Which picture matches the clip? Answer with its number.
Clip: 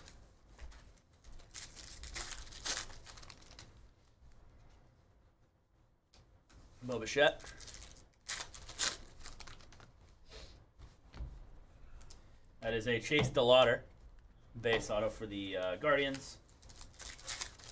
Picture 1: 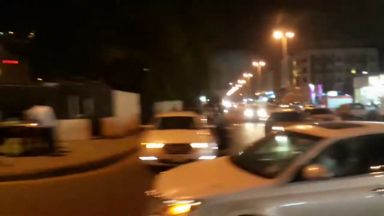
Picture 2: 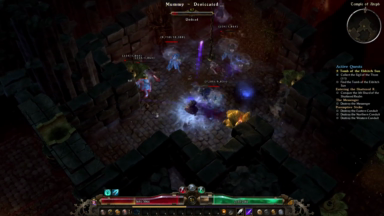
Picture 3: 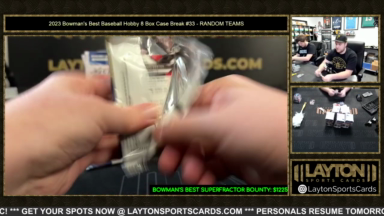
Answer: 3